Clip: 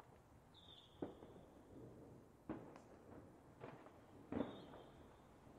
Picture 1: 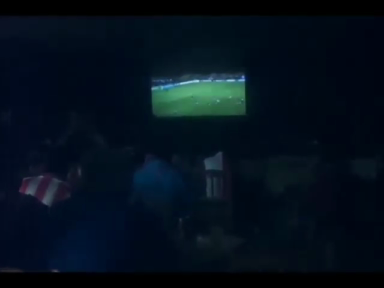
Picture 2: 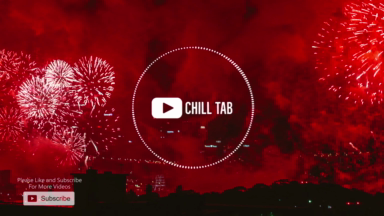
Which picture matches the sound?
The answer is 2